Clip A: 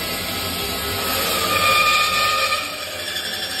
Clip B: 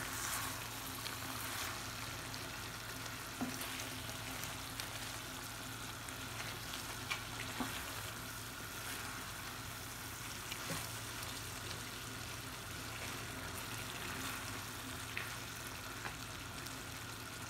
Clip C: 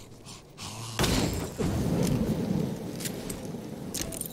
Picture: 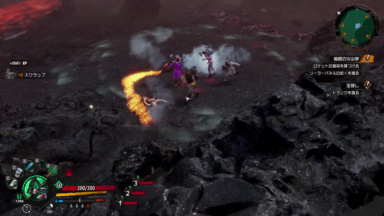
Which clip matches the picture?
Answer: C